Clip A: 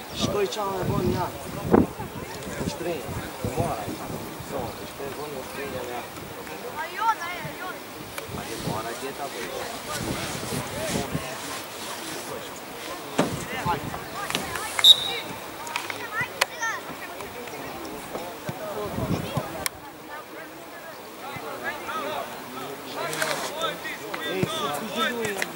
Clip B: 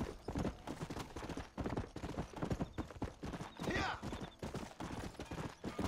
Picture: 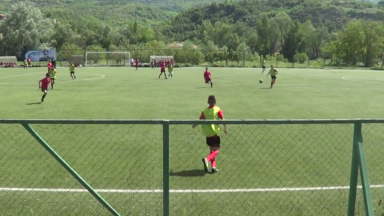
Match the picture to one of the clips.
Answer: A